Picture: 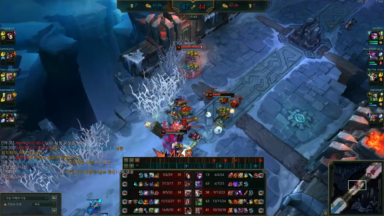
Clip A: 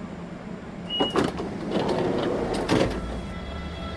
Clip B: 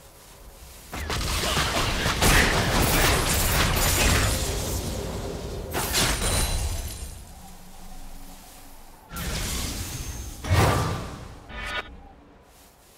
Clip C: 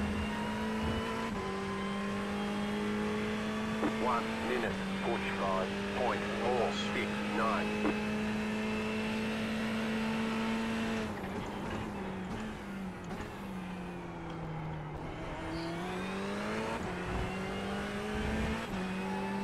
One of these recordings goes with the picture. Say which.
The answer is B